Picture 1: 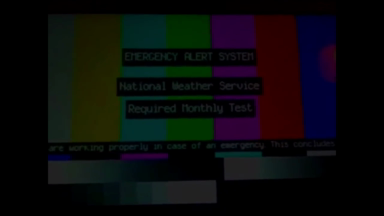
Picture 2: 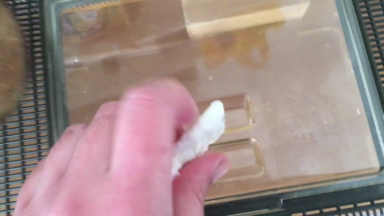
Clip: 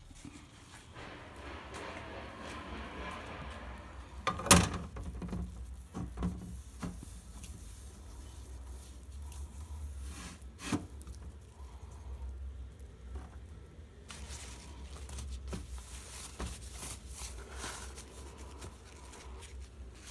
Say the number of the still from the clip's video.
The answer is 2